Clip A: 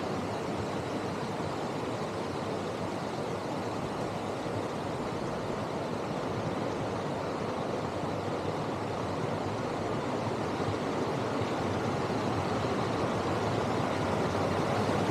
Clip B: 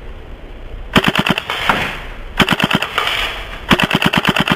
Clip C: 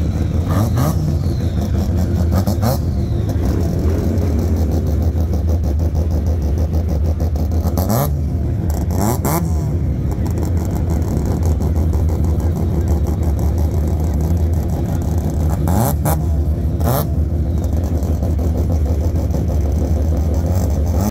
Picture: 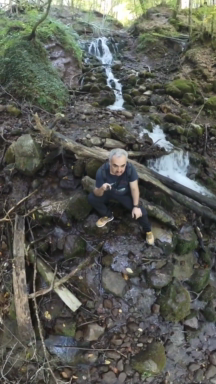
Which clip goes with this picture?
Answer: A